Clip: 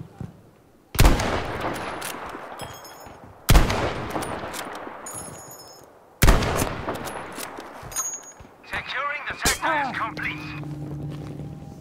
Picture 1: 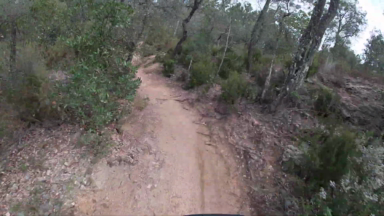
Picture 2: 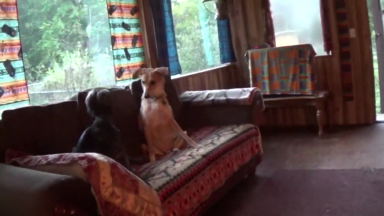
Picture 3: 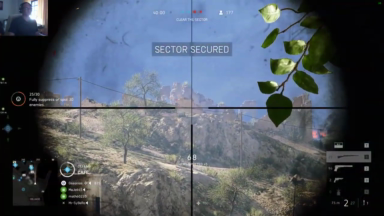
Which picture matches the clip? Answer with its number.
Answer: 3